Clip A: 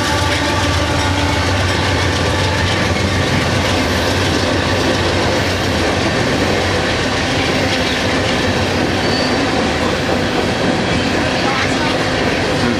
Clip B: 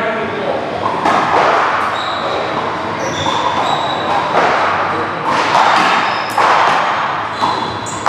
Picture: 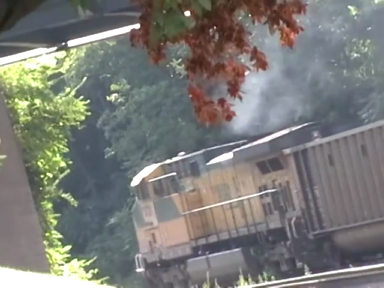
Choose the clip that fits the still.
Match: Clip A